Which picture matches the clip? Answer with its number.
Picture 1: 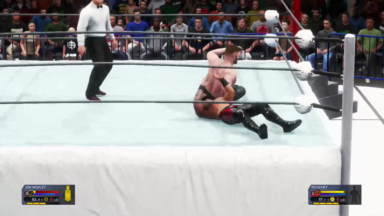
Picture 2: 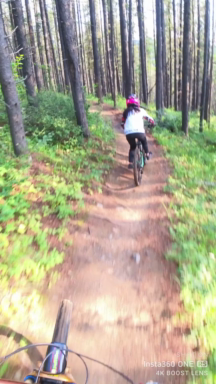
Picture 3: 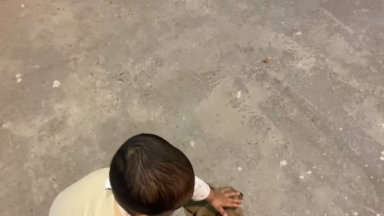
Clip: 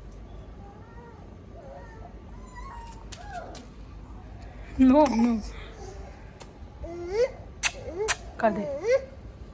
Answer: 3